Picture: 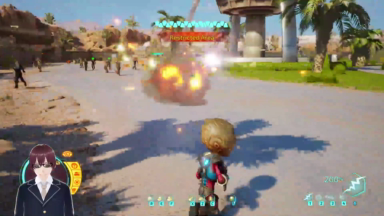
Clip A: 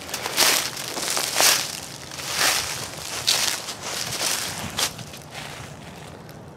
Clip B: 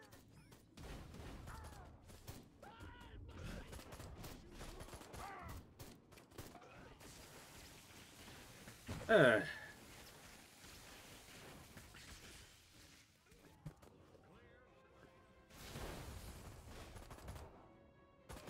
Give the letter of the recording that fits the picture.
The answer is B